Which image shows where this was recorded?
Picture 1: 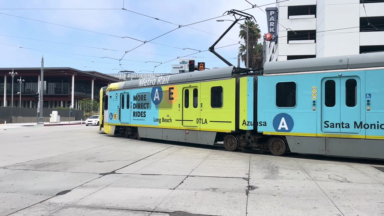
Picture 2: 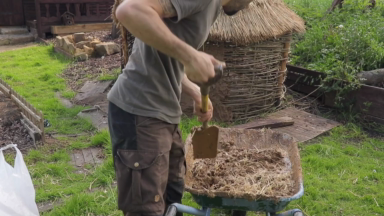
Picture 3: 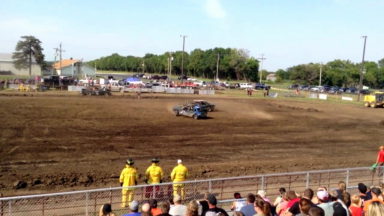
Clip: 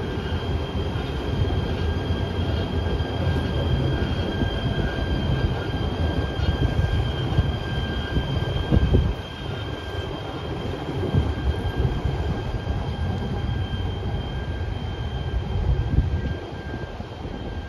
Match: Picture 1